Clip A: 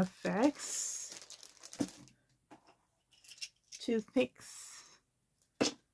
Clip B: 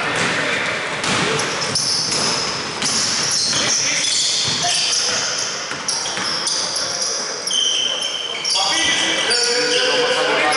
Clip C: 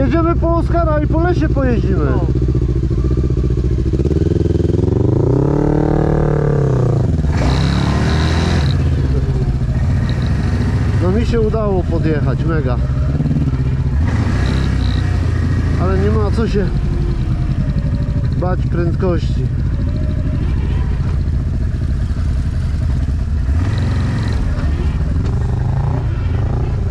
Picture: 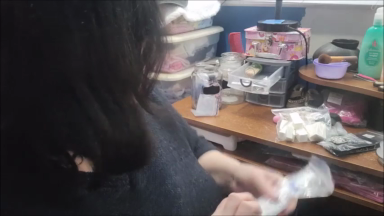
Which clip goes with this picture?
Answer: A